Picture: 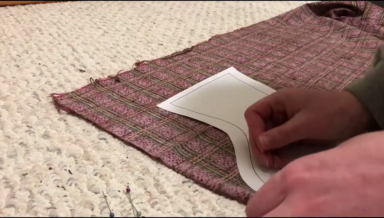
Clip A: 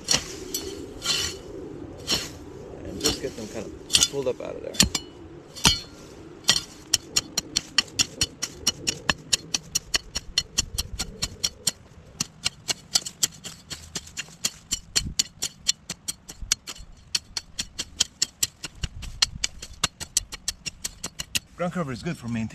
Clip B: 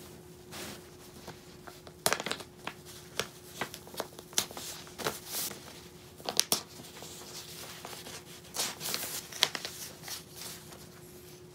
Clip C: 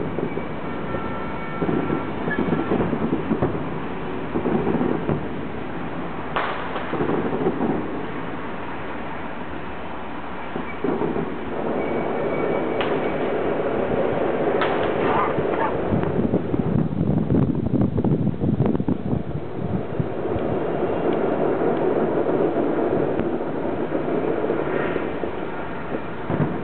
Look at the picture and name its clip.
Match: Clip B